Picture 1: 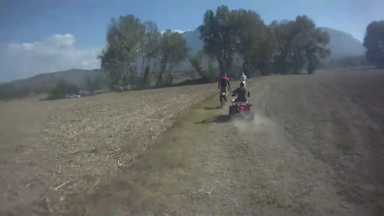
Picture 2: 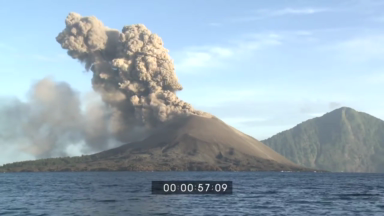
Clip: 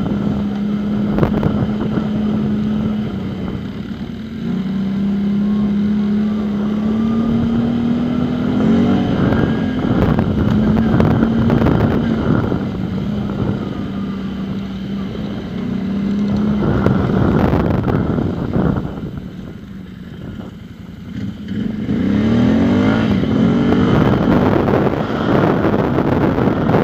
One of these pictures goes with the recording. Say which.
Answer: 1